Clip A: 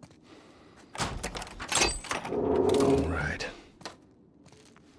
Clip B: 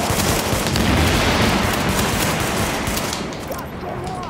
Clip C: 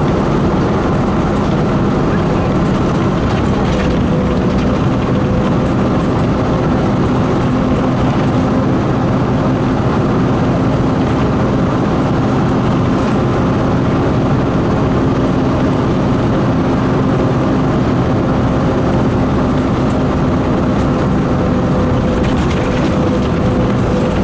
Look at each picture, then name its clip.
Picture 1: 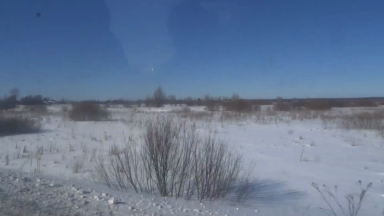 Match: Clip C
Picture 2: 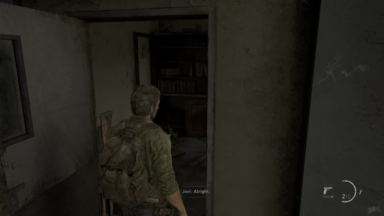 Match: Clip A